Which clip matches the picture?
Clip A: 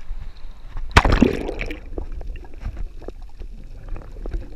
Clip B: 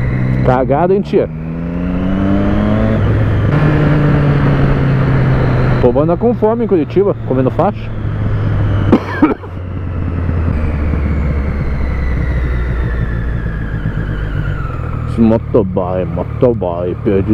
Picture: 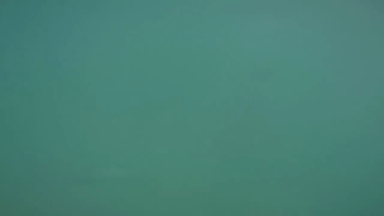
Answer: A